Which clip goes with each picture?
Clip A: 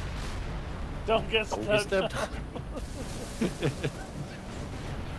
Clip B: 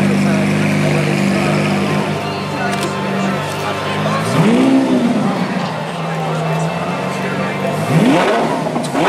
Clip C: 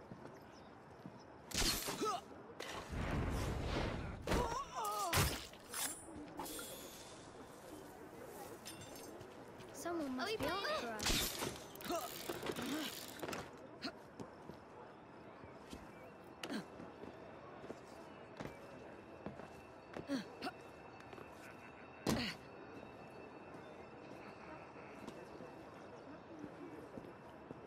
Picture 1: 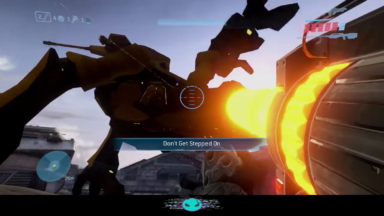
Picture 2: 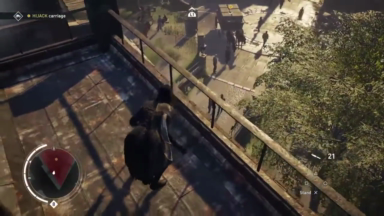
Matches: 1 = A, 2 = C